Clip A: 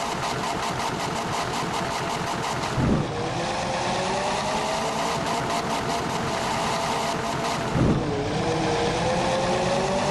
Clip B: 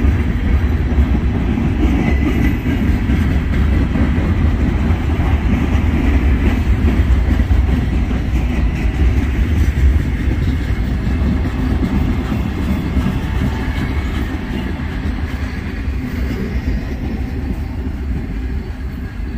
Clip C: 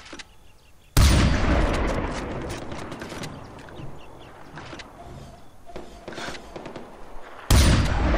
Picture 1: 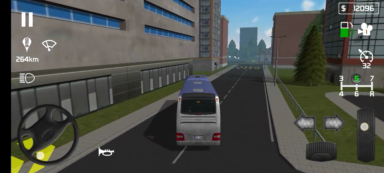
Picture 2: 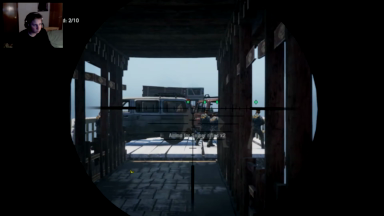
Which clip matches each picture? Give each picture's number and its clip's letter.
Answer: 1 A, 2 C